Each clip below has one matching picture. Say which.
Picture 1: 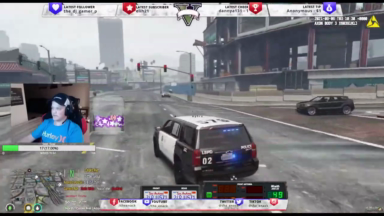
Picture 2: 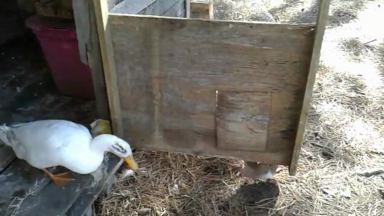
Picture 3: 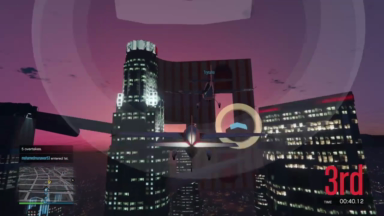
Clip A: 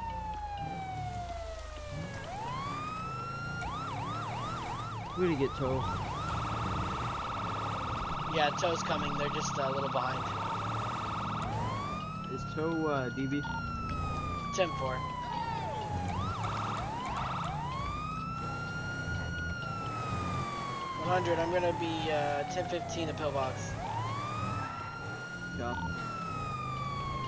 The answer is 1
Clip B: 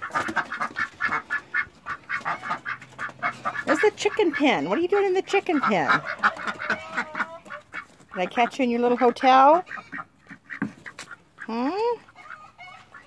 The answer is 2